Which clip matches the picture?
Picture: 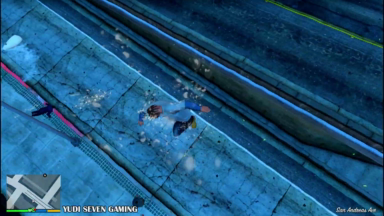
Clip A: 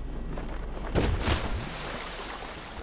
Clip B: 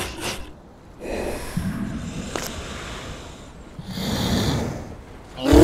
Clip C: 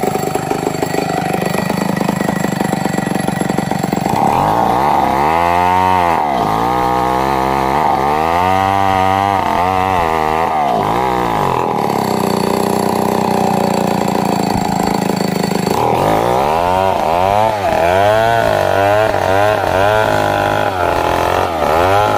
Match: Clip A